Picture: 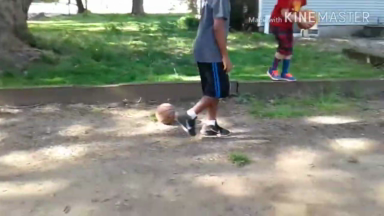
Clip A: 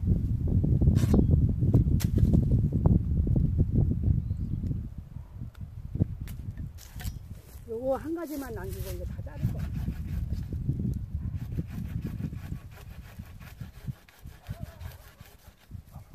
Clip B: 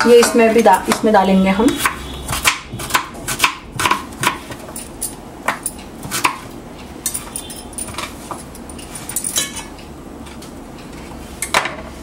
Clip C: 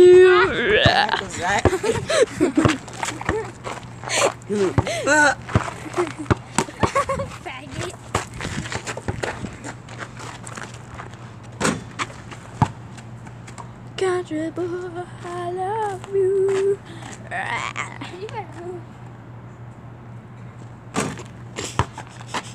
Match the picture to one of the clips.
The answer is C